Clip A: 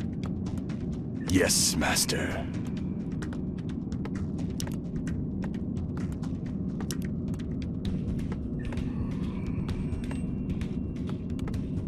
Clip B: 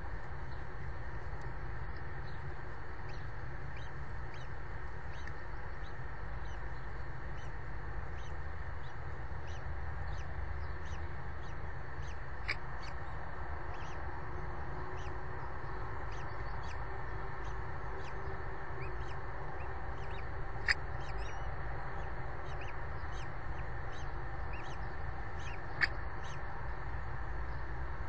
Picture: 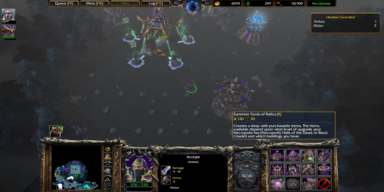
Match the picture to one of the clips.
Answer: A